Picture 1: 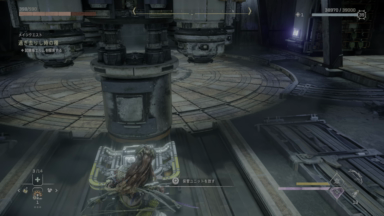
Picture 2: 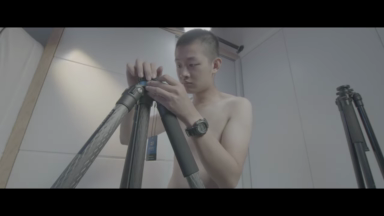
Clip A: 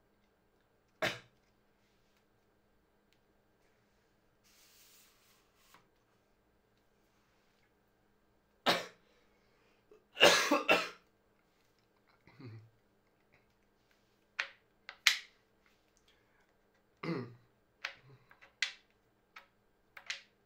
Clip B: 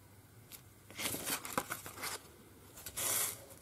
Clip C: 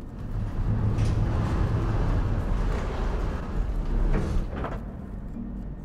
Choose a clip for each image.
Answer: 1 C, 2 A